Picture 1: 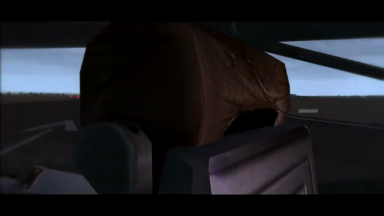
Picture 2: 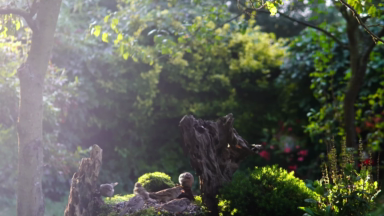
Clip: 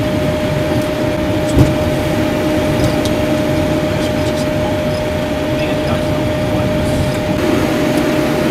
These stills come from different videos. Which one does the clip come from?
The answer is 1